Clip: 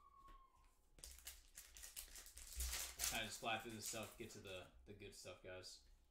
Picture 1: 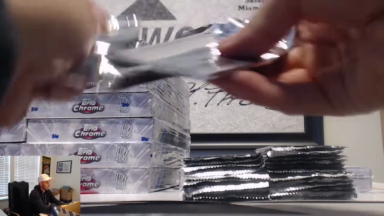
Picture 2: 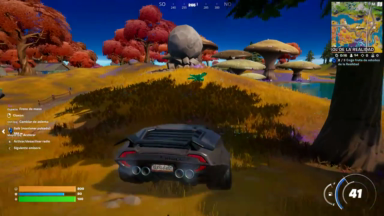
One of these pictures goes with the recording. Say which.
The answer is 1